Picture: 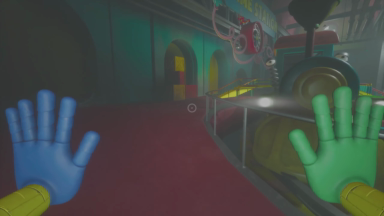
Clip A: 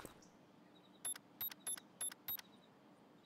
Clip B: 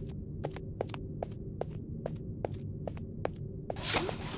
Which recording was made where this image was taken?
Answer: B